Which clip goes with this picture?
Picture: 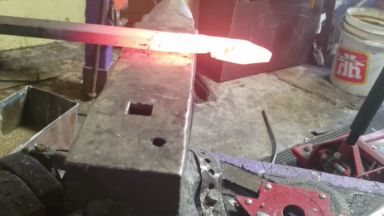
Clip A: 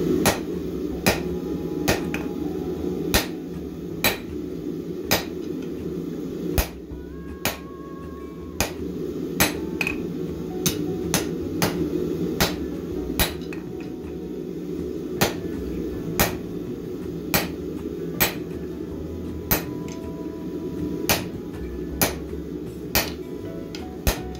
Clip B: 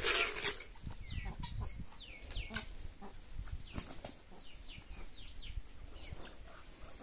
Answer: A